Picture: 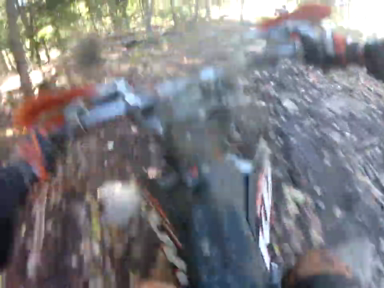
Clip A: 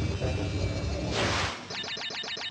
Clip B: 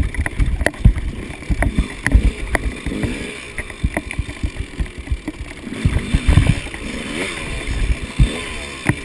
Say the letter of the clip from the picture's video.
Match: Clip B